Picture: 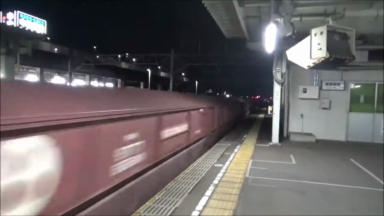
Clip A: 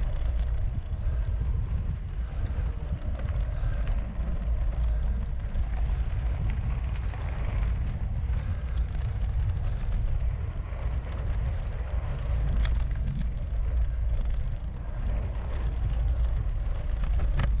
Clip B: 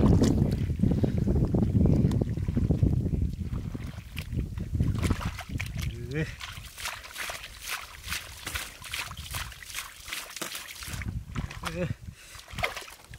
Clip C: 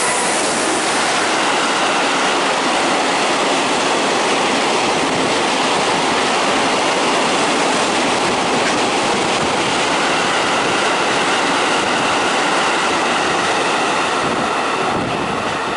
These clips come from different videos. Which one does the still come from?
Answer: C